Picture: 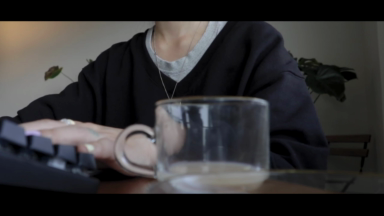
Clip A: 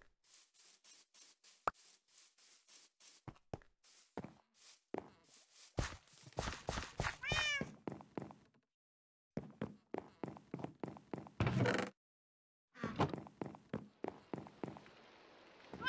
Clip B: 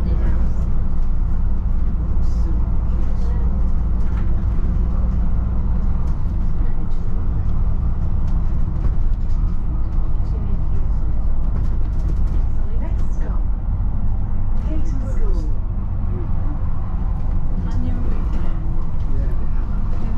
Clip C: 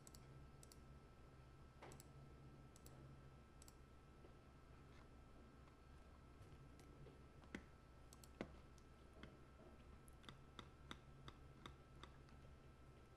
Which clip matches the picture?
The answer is C